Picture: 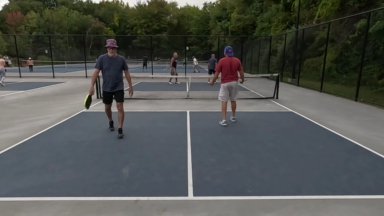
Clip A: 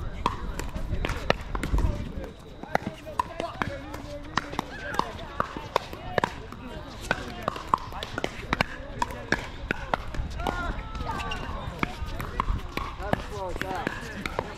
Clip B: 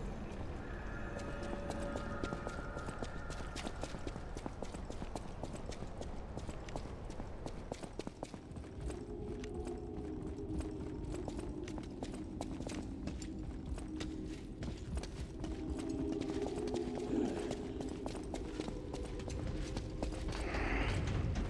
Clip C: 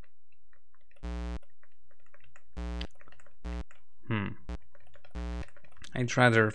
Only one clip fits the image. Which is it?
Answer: A